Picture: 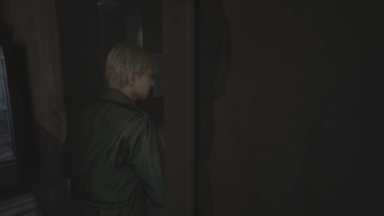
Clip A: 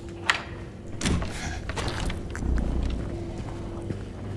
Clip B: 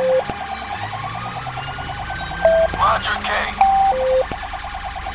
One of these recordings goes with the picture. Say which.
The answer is A